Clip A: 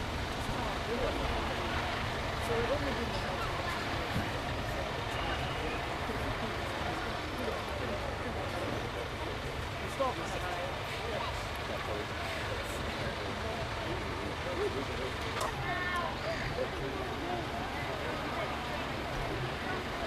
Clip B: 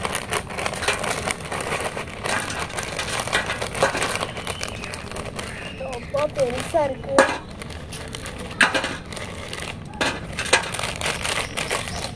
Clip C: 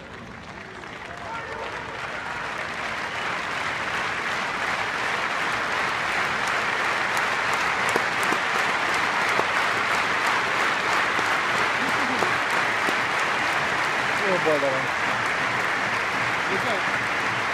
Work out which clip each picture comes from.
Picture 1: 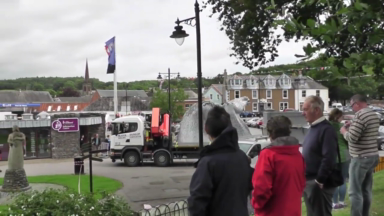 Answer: A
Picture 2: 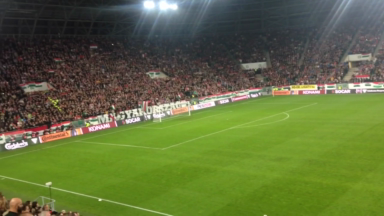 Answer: C